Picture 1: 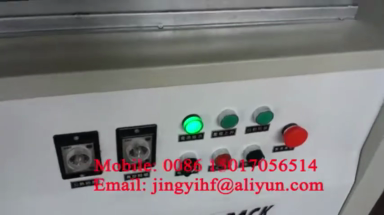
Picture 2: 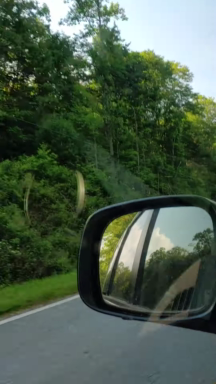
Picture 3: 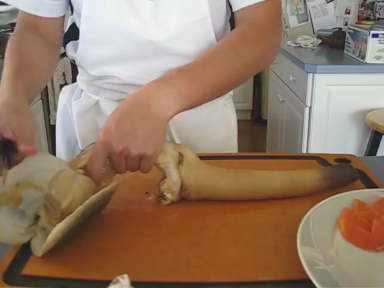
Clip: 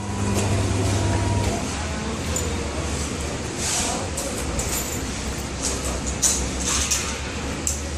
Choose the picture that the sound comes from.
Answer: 1